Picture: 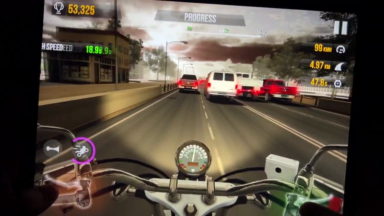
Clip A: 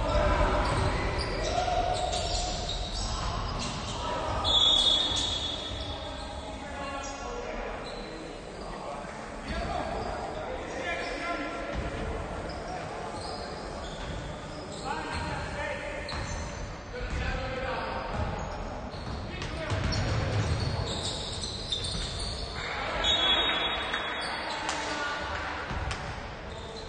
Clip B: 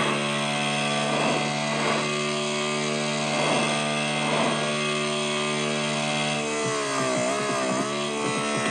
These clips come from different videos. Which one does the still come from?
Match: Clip B